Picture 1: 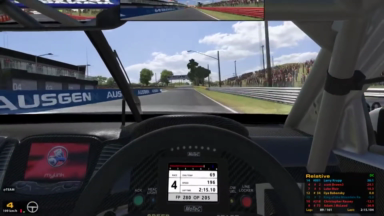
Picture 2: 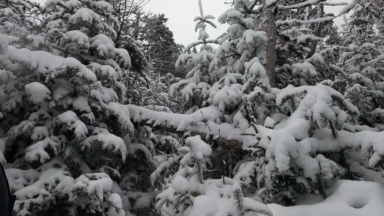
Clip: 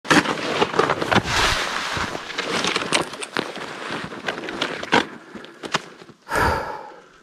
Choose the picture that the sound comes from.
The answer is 2